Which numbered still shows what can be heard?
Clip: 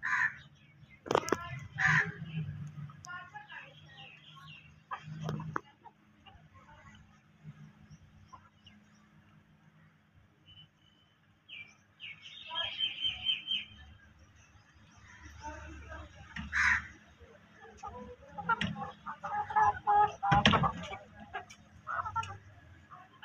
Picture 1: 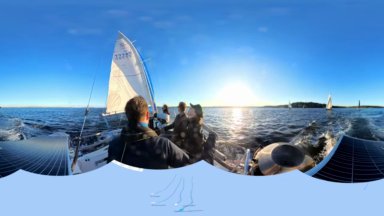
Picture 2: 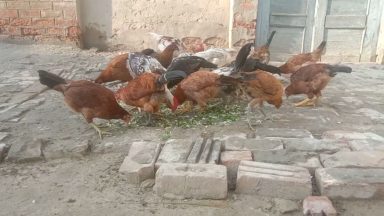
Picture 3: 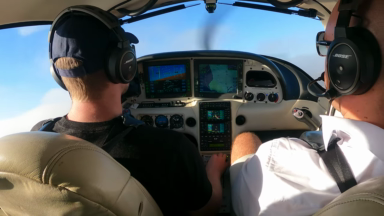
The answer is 2